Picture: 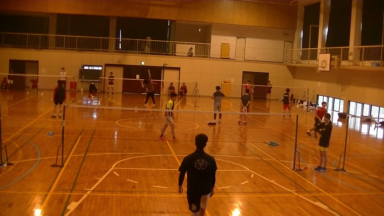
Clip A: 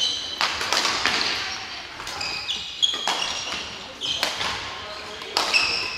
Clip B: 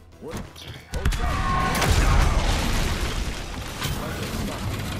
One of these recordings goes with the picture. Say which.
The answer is A